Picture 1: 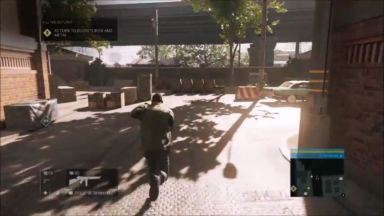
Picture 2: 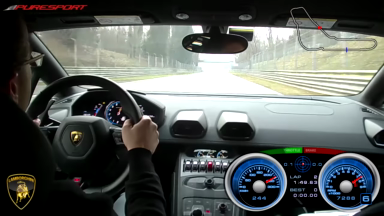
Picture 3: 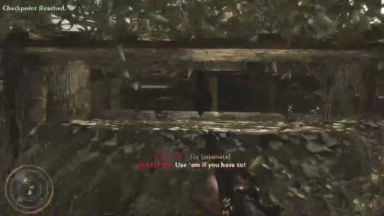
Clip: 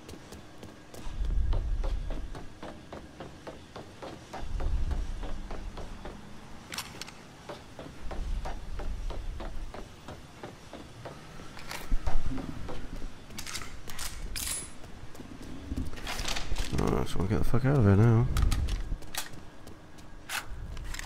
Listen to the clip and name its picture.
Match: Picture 1